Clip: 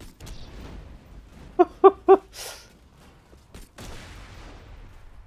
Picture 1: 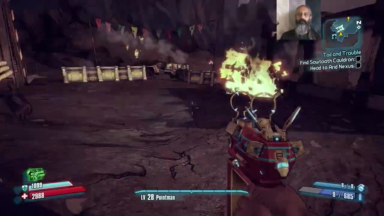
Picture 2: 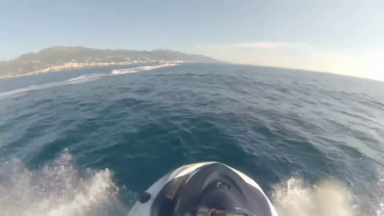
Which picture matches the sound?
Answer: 1